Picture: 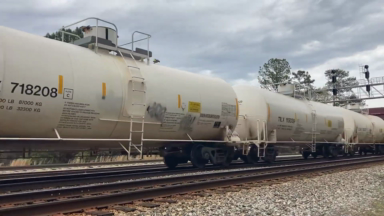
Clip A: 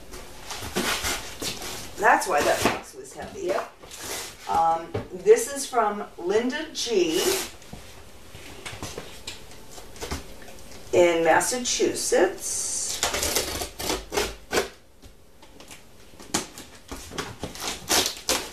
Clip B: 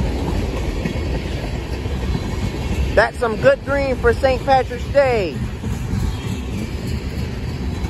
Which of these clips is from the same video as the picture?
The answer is B